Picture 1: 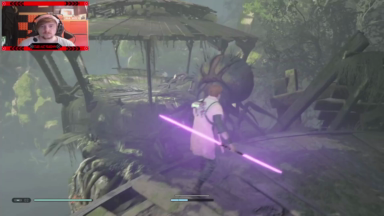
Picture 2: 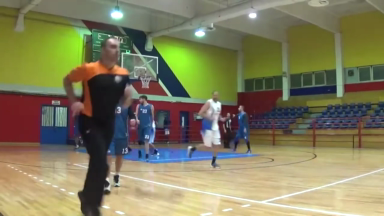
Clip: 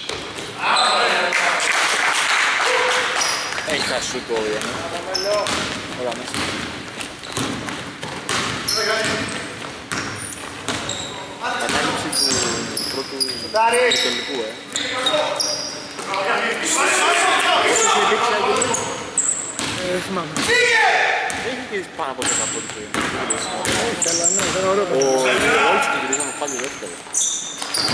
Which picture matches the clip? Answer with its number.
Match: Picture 2